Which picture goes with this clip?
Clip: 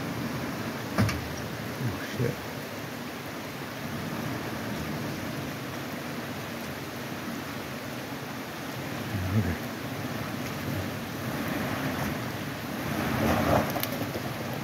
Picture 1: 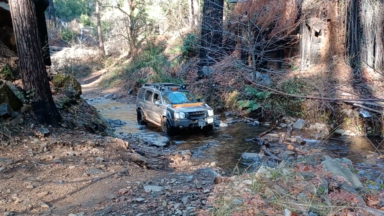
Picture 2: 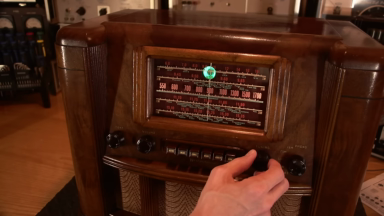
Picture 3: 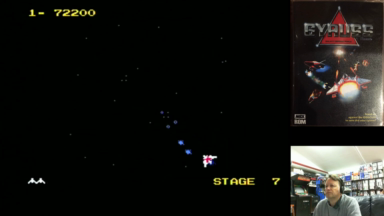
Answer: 1